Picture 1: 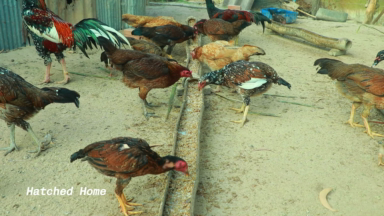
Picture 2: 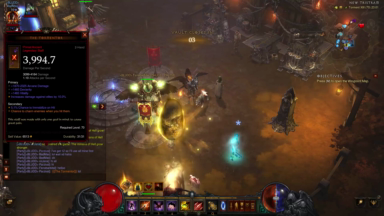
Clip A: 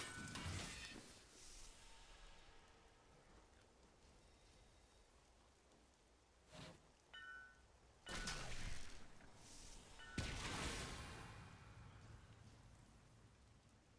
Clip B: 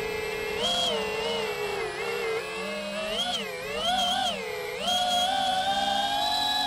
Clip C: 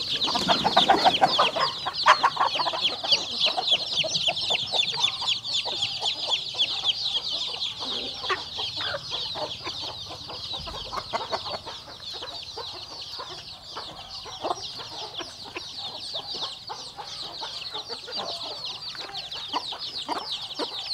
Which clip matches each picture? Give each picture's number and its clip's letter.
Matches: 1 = C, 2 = A